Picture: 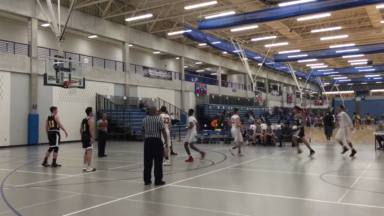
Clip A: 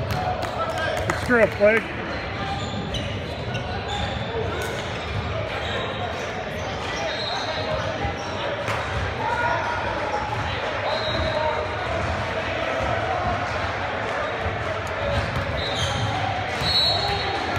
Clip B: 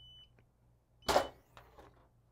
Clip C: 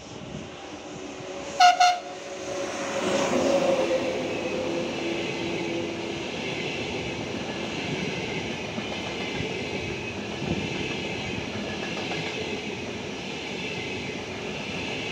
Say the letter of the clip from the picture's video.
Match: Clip A